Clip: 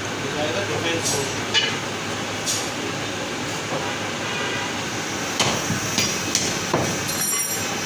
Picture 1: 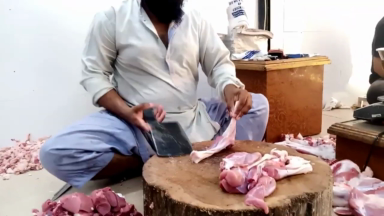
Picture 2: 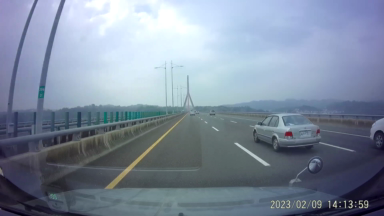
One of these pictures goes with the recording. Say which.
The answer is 1